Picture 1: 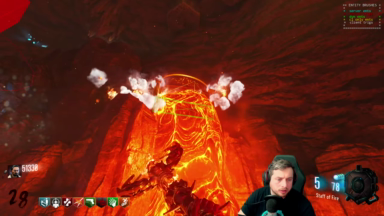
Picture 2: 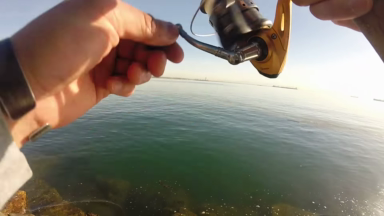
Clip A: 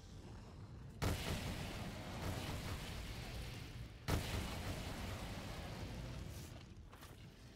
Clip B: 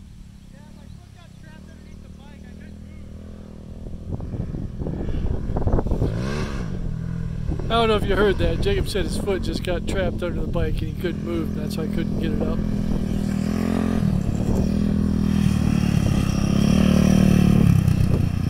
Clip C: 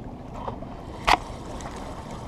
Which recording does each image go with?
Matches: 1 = A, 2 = C